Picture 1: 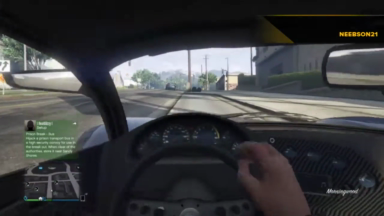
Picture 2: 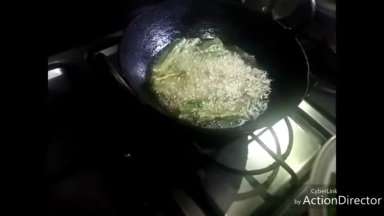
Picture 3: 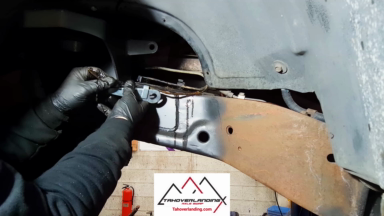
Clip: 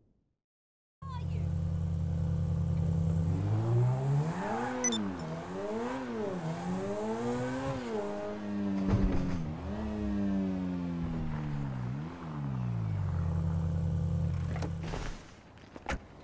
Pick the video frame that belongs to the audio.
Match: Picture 1